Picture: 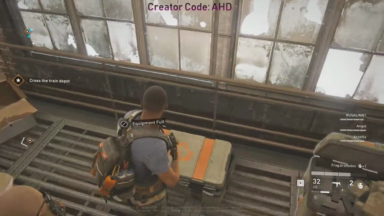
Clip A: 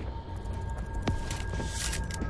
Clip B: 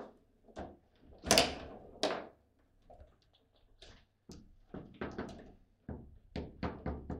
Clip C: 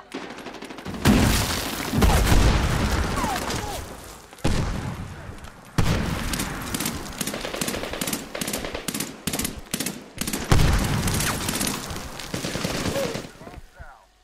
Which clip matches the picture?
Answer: A